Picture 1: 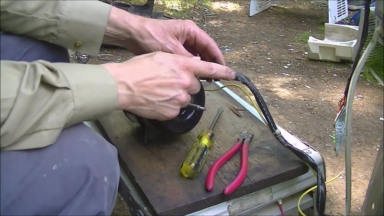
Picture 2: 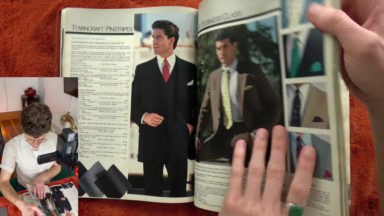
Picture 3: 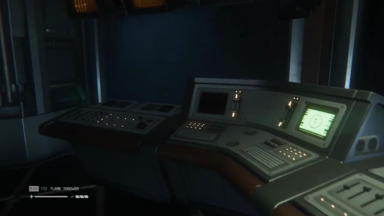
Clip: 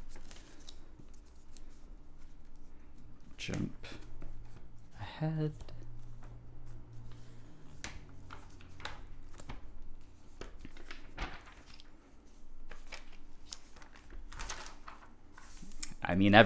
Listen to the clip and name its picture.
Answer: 2